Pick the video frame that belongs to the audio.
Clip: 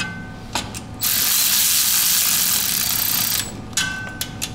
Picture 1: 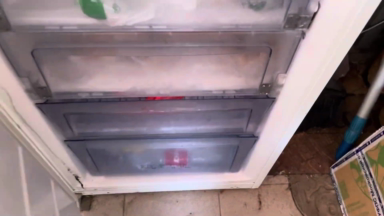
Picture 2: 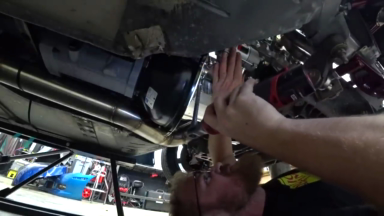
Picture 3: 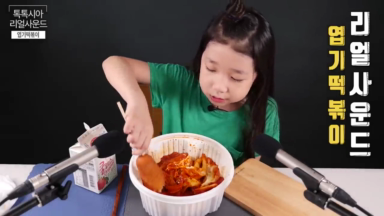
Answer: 2